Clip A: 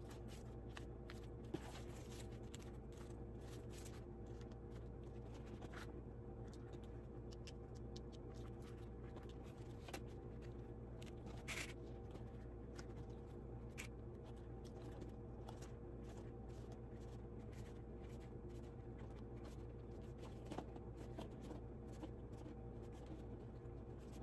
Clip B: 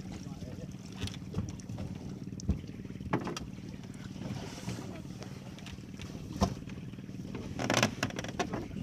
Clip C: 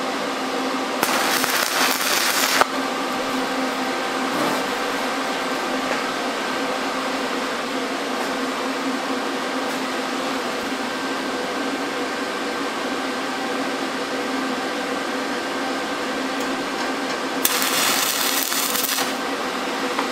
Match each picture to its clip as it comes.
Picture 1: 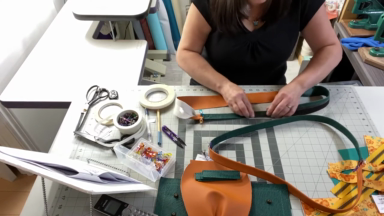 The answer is A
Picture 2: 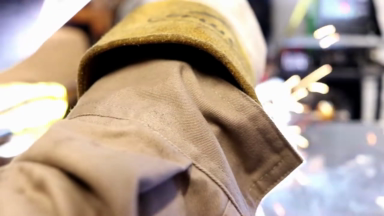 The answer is C